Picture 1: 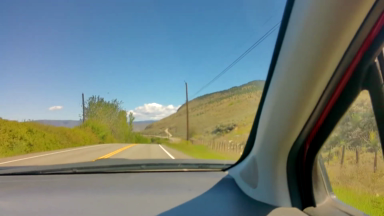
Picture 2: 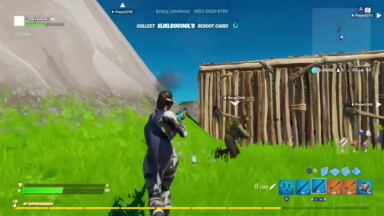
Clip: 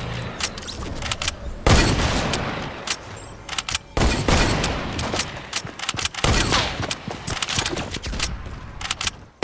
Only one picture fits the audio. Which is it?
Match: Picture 2